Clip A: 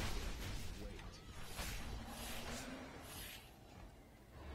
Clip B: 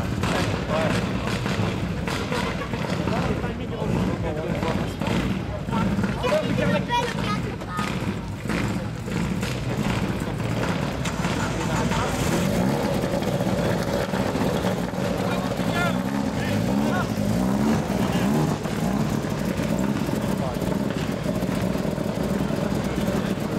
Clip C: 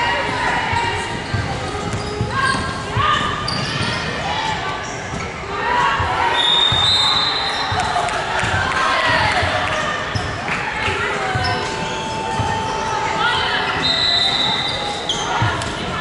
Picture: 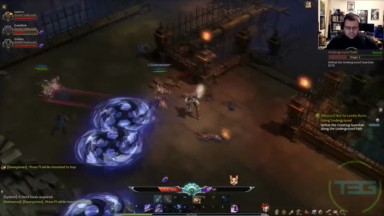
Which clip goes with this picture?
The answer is A